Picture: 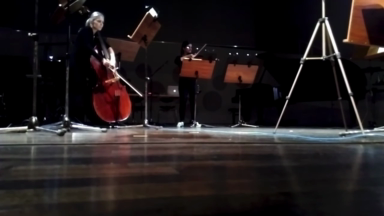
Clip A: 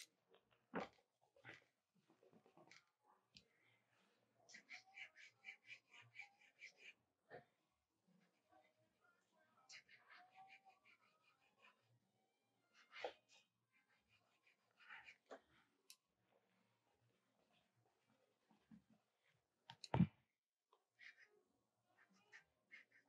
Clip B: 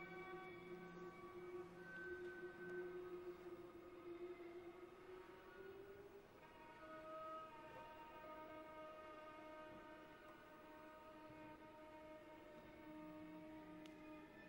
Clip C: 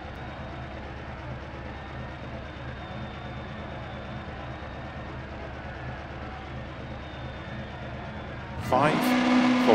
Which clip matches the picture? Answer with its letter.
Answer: B